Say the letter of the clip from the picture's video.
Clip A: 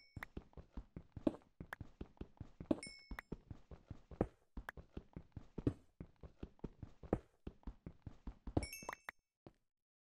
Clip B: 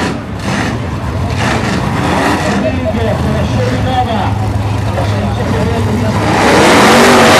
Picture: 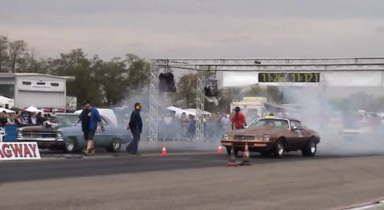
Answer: B